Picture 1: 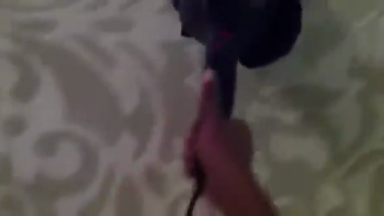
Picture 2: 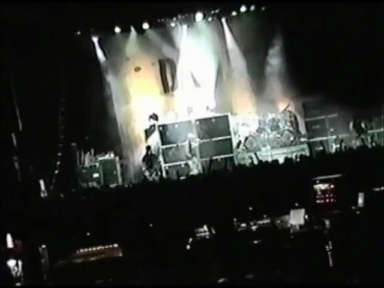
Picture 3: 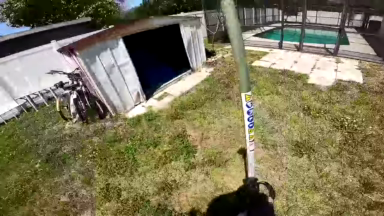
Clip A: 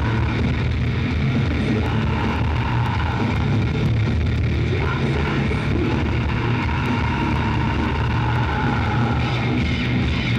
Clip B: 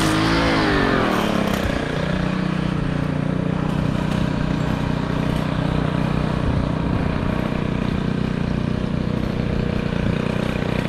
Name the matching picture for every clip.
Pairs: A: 2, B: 3